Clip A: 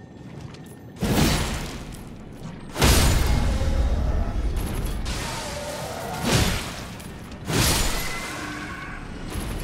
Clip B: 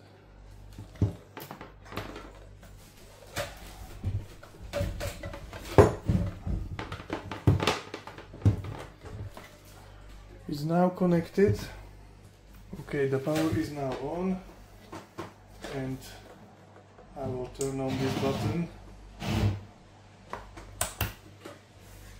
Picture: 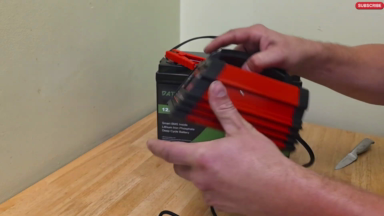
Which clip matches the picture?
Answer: B